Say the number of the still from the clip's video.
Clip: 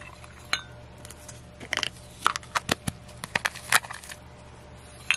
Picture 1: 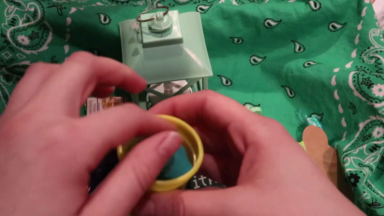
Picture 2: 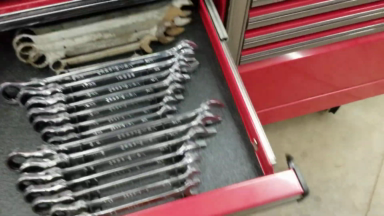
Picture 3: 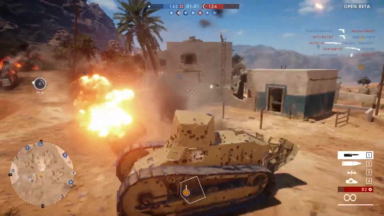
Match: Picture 1